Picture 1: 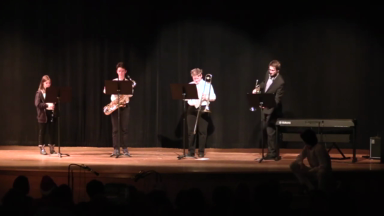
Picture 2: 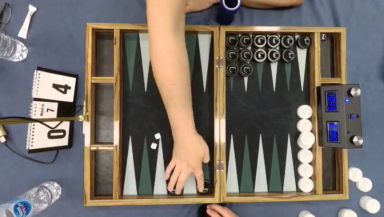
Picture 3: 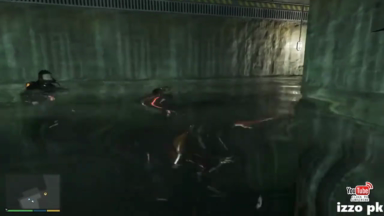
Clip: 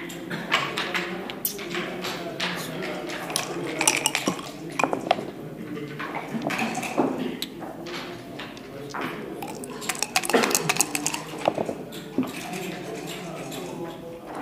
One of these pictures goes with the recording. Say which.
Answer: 2